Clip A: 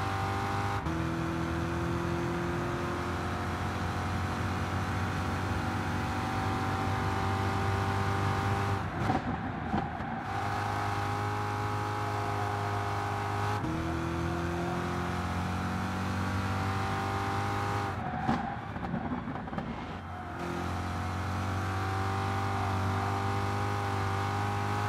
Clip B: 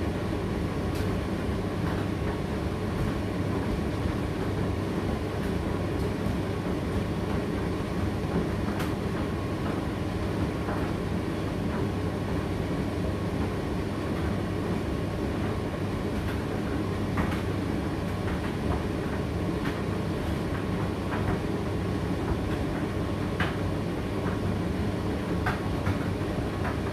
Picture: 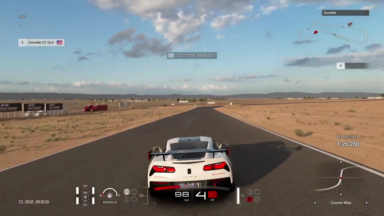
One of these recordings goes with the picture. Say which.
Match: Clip A